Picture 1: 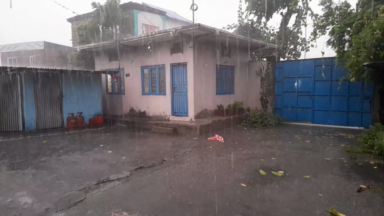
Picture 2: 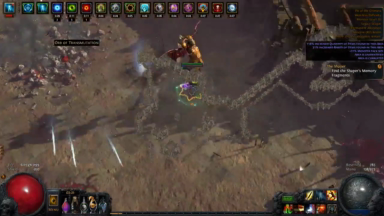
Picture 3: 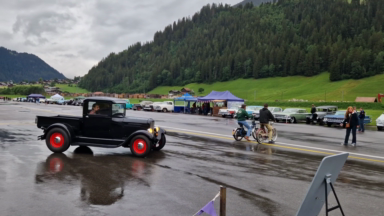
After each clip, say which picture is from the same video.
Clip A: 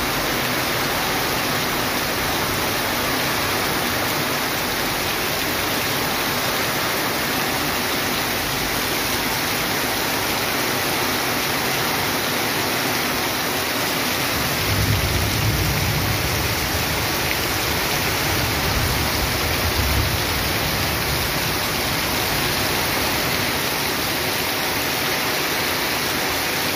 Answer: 1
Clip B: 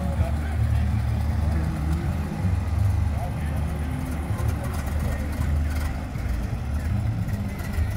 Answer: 3